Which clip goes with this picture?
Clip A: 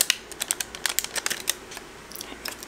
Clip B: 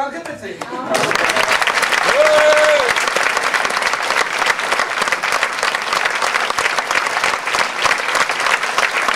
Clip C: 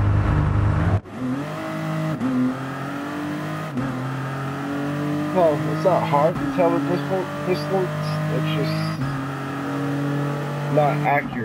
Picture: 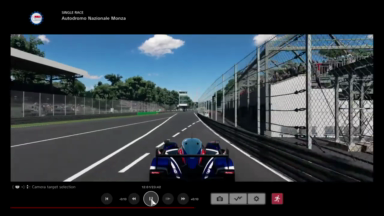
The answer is C